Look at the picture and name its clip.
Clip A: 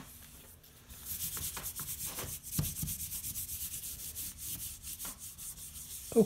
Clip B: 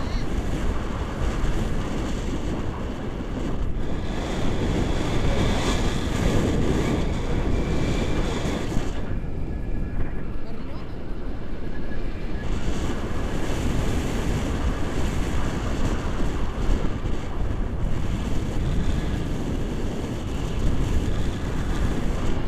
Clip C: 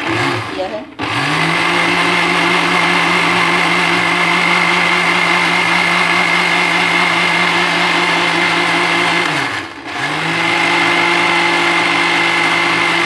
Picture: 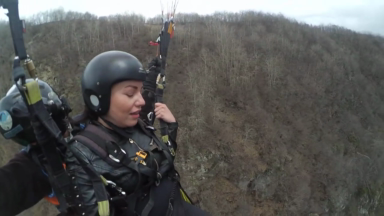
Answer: B